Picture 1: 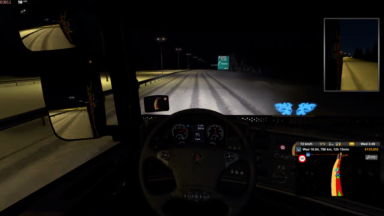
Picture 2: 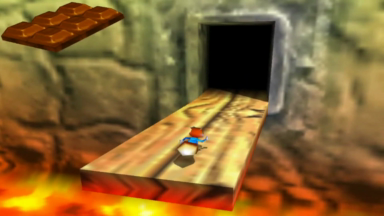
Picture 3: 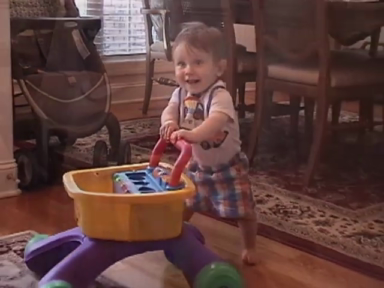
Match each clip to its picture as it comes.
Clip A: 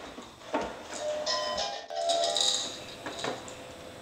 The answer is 3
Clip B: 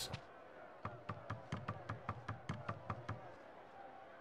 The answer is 2